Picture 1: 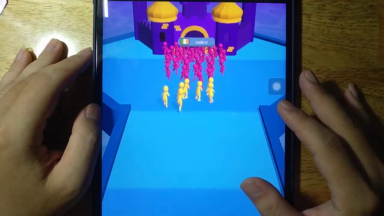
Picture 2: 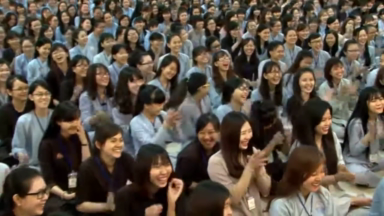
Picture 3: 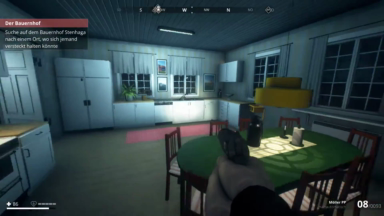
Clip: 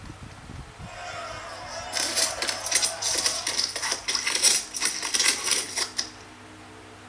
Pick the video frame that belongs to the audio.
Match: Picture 1